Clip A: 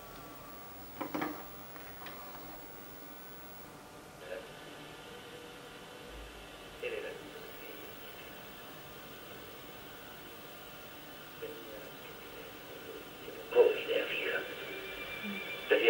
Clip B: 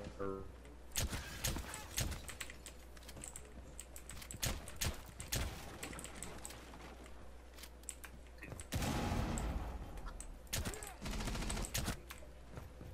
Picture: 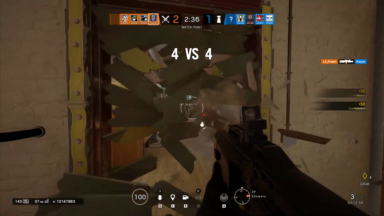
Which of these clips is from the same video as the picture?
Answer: B